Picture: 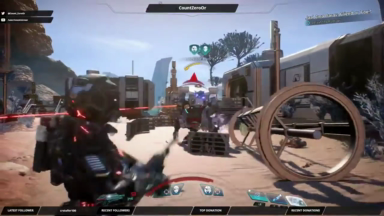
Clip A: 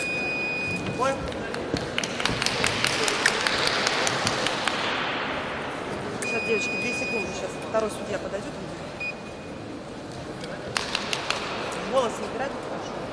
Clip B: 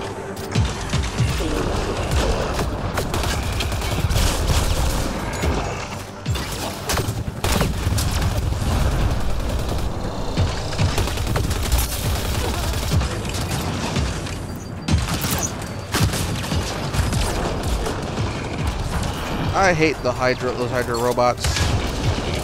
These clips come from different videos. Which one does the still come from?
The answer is B